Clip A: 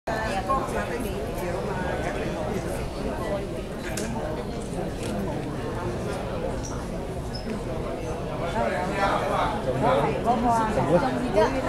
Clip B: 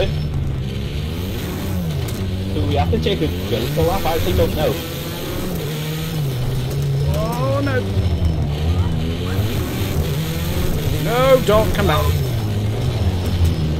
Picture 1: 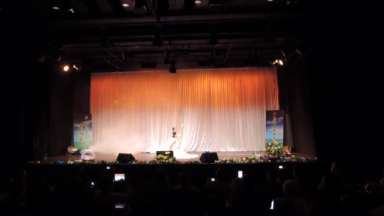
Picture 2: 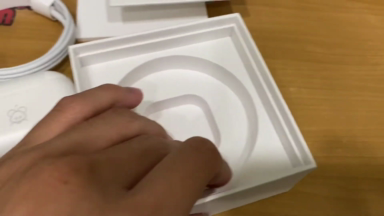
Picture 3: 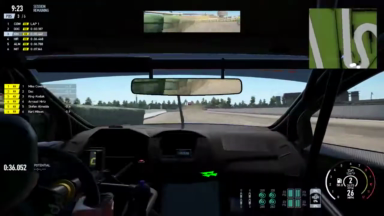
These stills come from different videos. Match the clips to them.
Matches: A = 1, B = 3